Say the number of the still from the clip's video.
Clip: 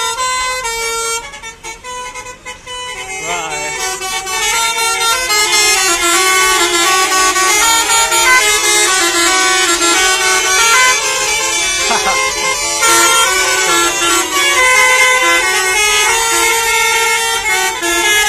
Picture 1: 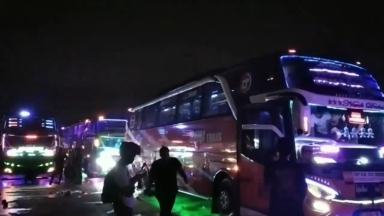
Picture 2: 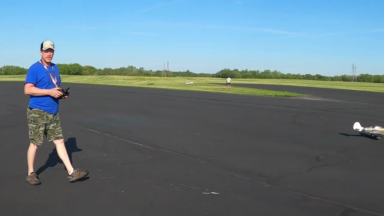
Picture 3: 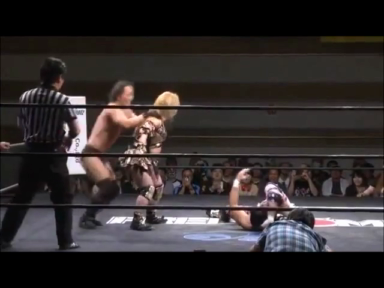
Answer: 1